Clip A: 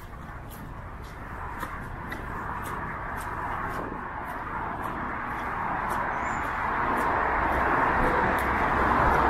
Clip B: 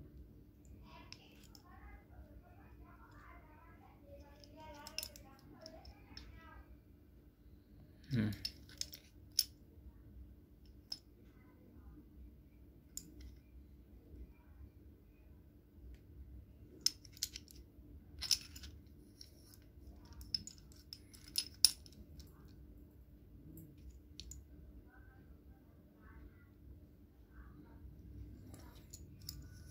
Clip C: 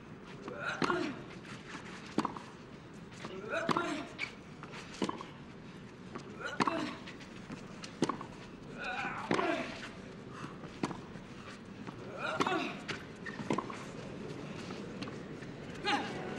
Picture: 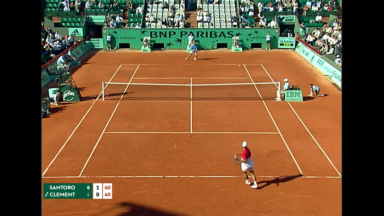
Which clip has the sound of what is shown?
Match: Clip C